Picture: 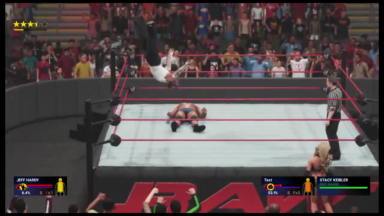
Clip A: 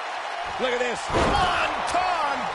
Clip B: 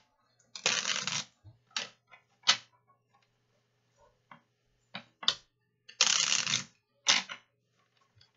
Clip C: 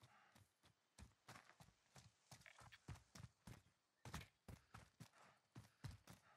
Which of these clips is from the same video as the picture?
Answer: A